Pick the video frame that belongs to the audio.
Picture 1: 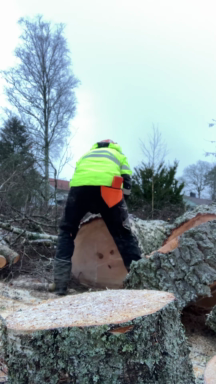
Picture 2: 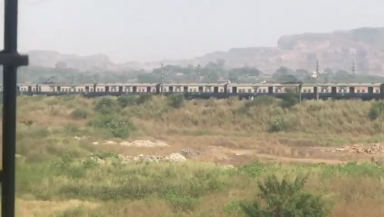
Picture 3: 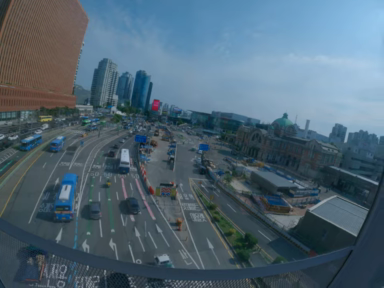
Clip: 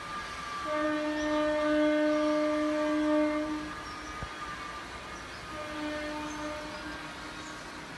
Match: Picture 2